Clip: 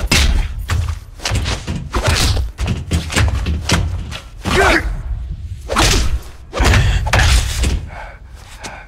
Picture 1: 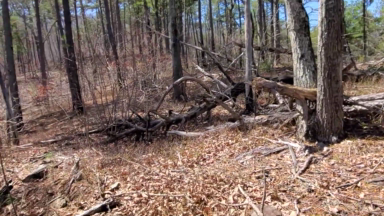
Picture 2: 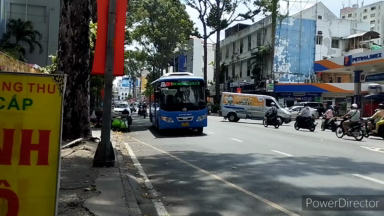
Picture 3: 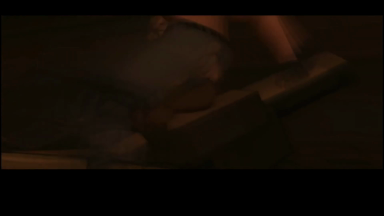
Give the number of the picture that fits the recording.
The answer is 3